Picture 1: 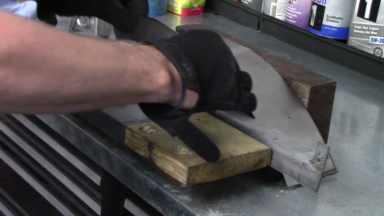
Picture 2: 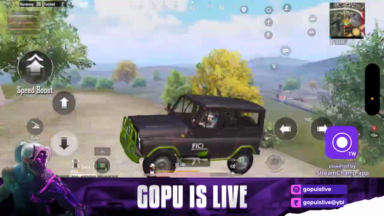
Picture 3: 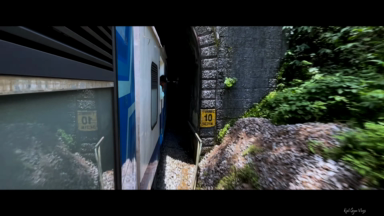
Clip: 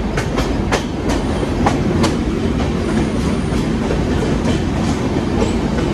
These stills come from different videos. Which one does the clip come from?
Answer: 3